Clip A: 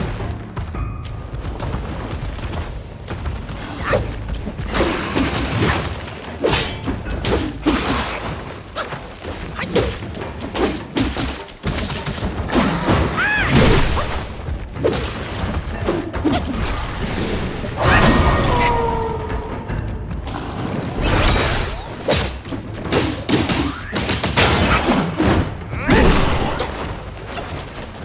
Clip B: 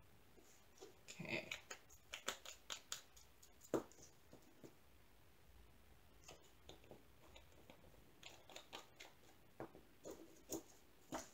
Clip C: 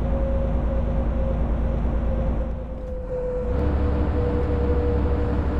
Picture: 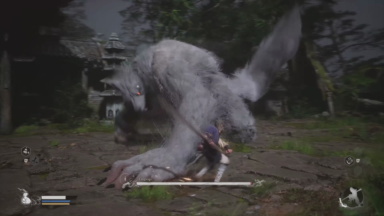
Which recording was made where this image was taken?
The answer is A